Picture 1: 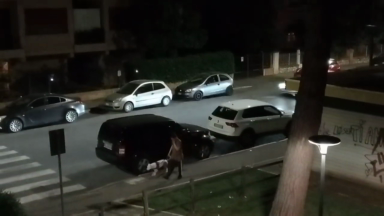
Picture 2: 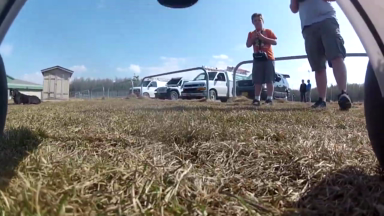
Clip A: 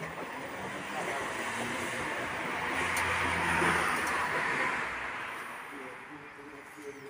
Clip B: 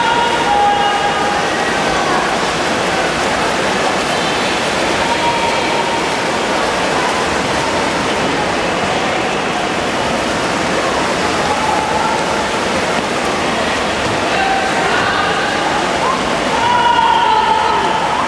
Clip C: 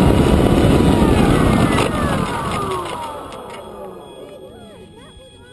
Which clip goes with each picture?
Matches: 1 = A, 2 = C